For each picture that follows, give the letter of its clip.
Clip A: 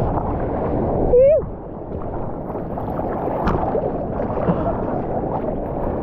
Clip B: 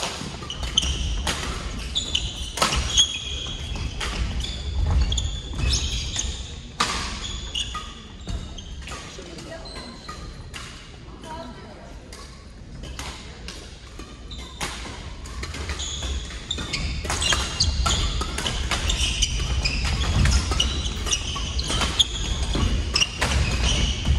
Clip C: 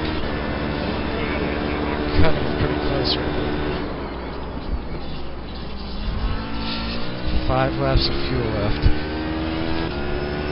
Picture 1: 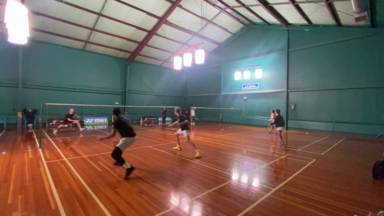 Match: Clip B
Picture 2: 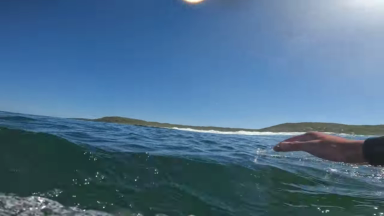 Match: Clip A